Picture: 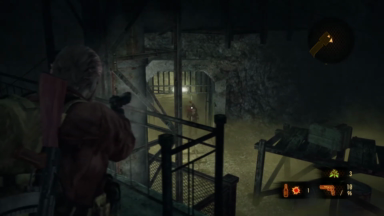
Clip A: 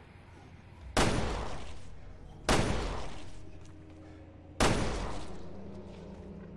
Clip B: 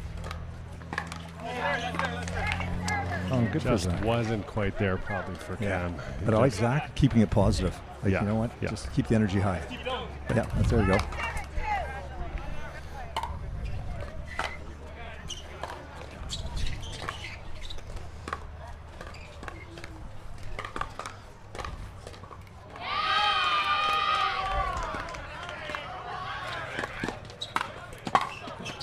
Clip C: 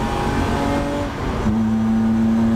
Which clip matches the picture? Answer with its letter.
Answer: A